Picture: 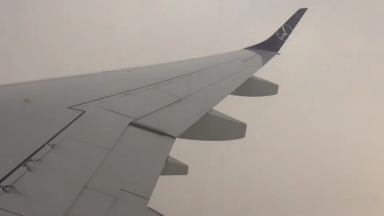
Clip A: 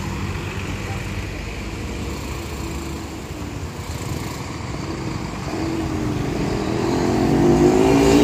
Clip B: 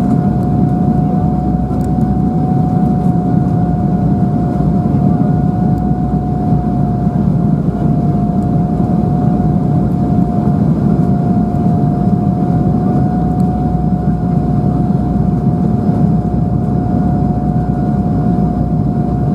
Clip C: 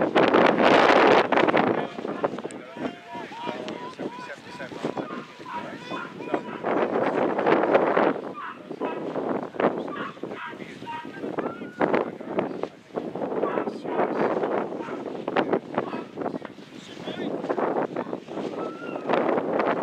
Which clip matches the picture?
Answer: B